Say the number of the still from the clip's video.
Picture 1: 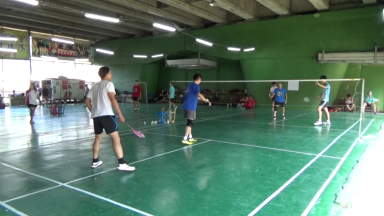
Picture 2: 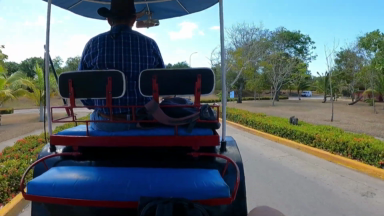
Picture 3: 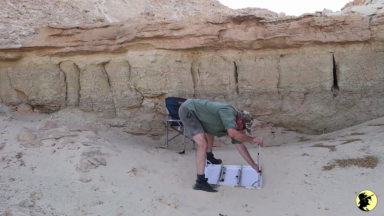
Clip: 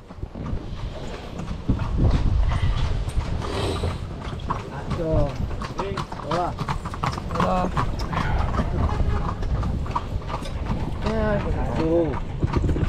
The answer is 2